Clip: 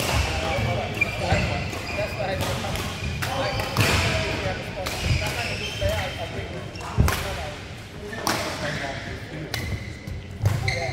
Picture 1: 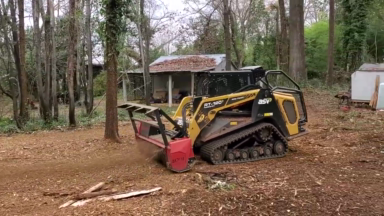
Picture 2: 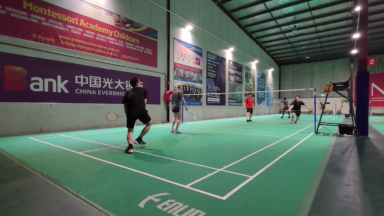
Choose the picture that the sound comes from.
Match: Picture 2